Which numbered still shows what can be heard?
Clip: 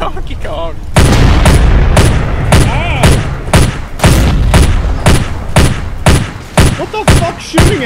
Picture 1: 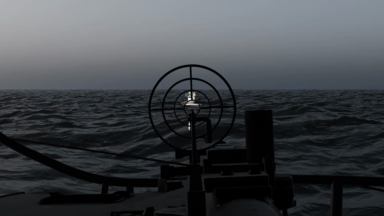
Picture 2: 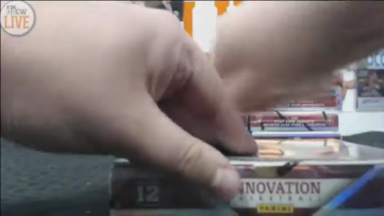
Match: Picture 1